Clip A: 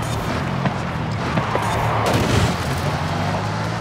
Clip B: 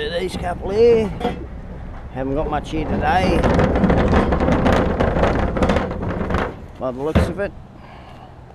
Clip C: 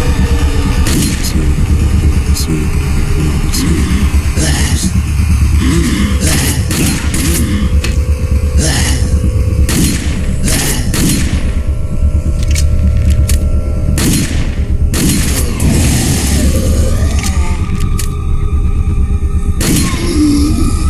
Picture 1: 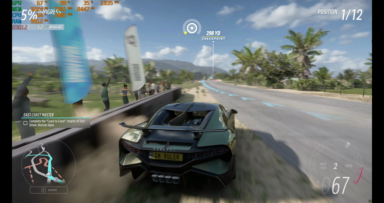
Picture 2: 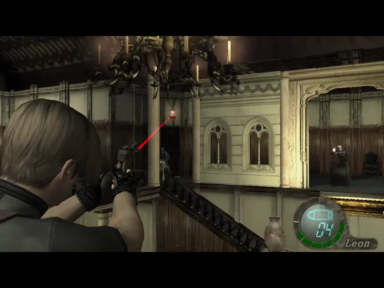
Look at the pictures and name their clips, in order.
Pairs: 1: A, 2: C